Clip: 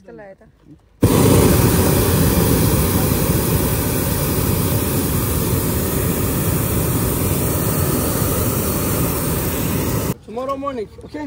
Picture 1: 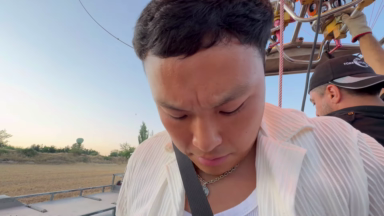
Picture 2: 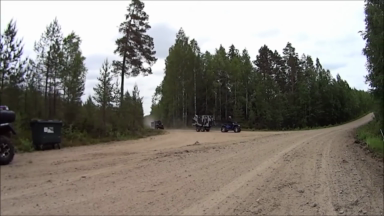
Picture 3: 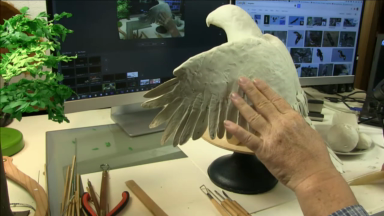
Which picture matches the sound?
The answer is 1